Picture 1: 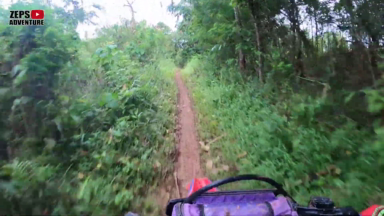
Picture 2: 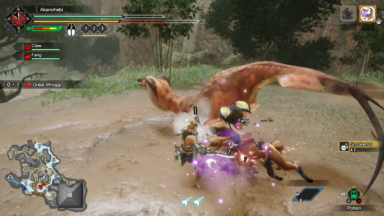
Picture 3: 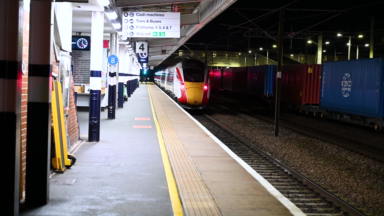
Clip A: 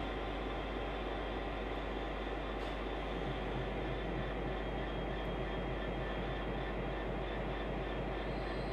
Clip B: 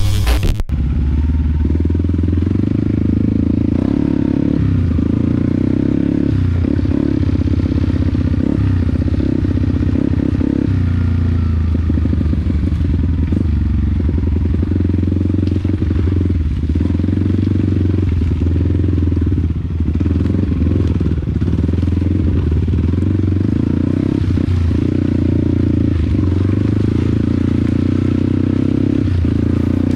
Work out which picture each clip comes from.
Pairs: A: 3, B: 1